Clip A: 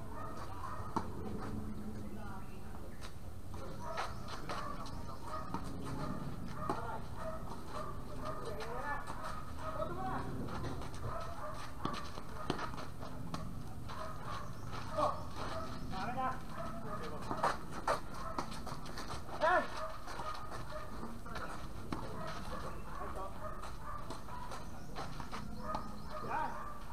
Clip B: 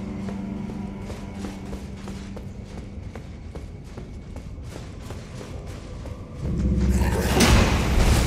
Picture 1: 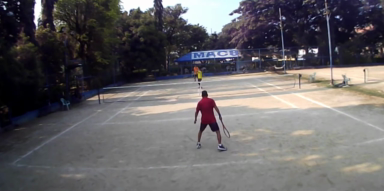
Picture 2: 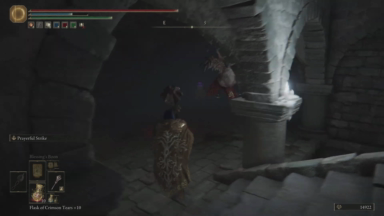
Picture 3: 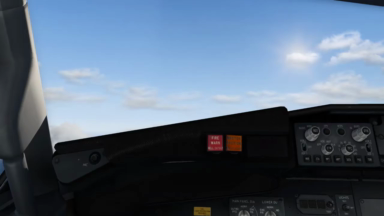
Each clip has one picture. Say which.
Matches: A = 1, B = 2